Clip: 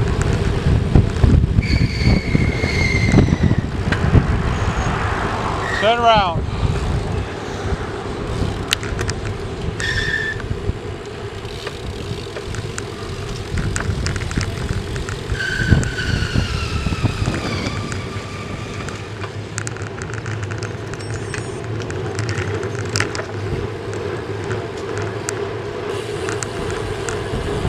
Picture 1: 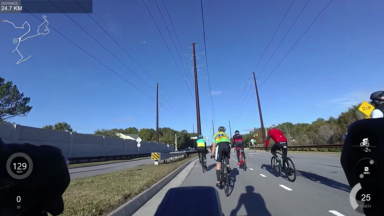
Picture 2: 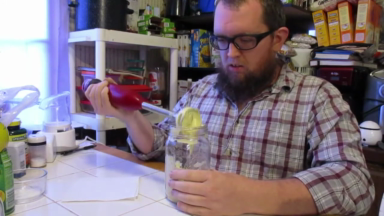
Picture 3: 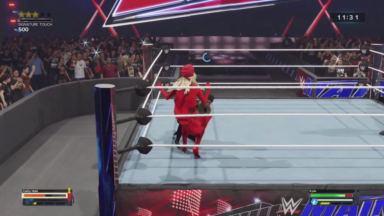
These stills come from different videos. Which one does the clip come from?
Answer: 1